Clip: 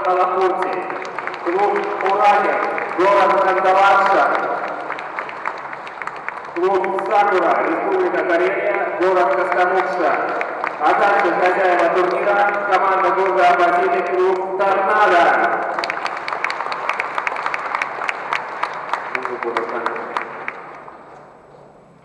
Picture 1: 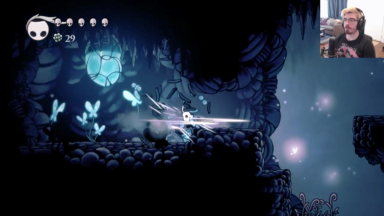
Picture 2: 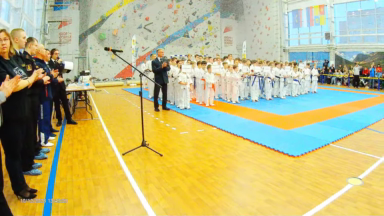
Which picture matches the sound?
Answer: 2